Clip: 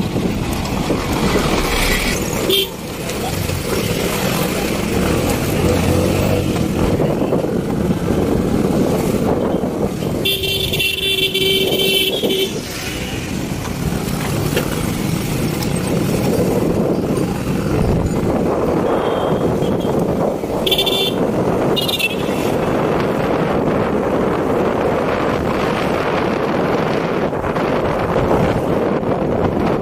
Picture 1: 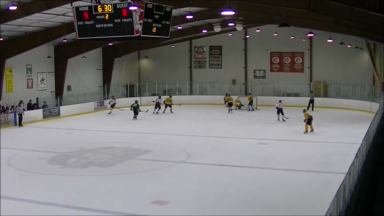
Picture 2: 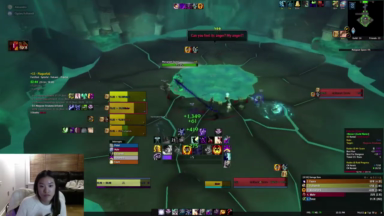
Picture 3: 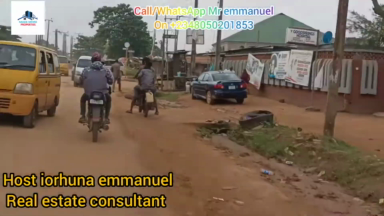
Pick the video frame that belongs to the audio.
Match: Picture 3